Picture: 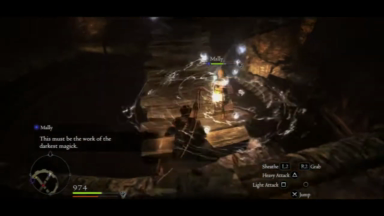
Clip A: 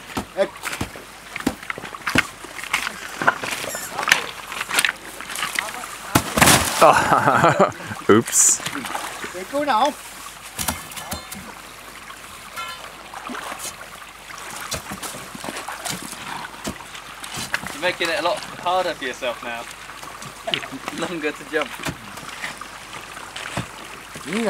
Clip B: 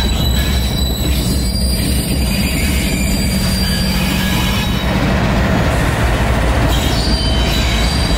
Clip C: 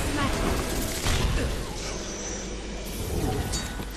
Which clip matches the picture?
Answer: C